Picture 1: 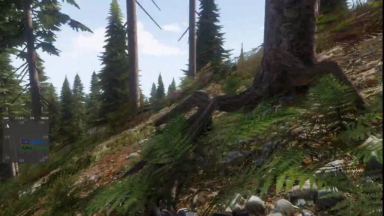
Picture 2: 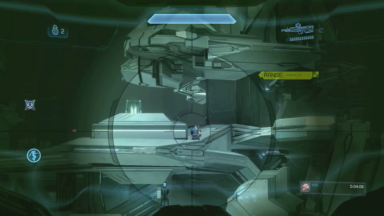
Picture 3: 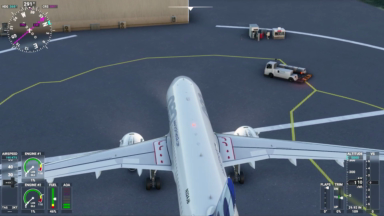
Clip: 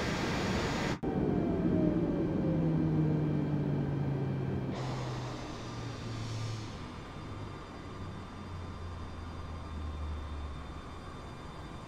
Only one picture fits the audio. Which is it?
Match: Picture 3